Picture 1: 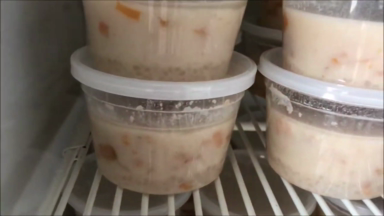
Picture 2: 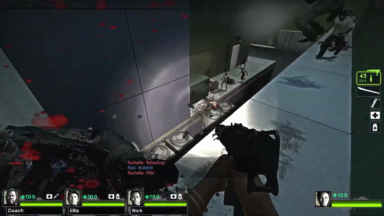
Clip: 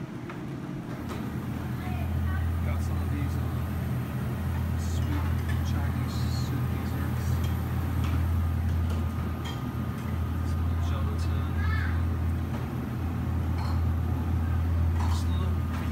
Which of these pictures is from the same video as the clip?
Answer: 1